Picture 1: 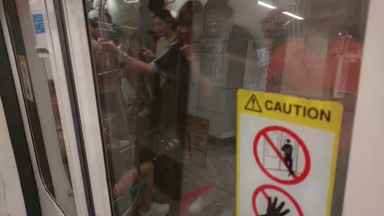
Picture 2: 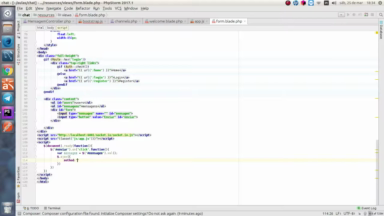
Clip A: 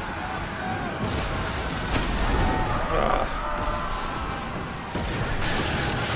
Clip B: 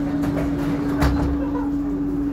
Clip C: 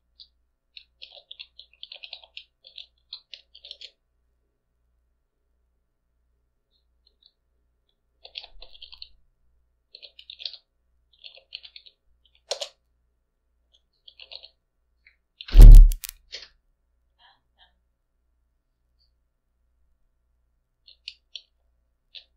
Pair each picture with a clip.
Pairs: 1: B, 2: C